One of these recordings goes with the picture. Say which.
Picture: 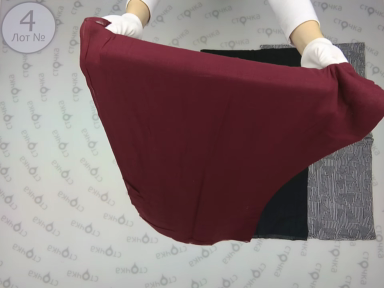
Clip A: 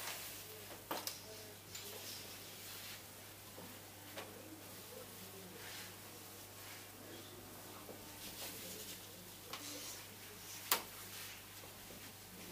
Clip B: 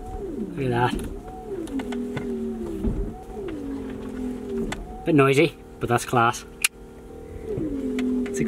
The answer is A